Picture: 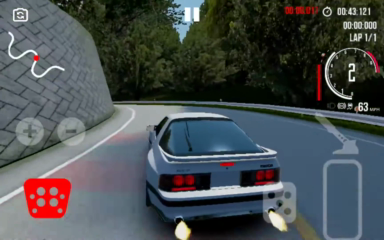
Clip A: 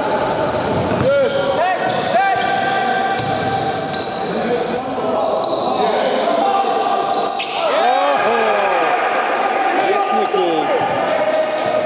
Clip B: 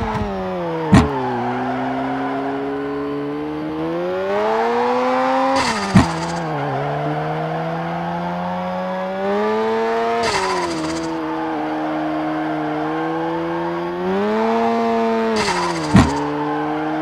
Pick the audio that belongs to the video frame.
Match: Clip B